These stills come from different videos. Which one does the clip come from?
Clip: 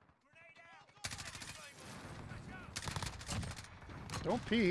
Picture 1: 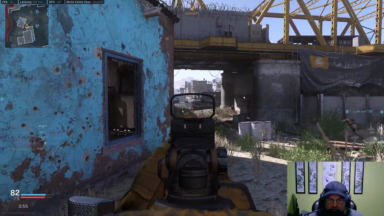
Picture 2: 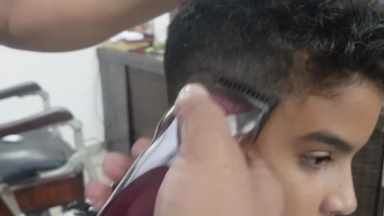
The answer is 1